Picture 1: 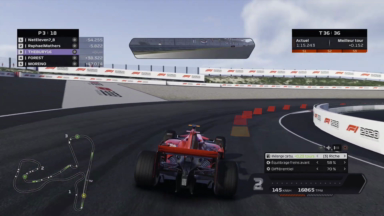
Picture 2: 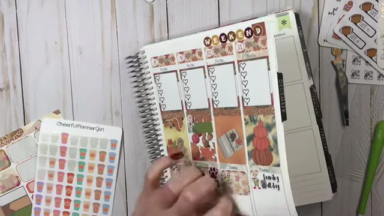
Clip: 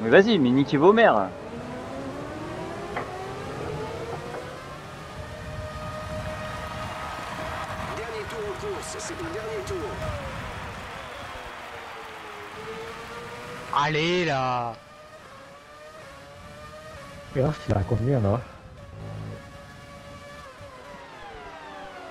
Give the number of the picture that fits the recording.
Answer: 1